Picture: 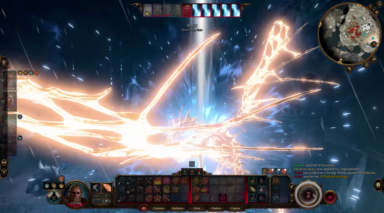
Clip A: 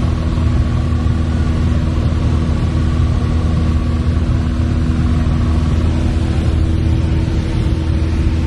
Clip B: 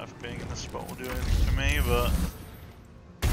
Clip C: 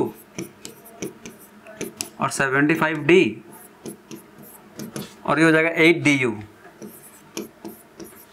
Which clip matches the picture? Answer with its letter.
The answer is B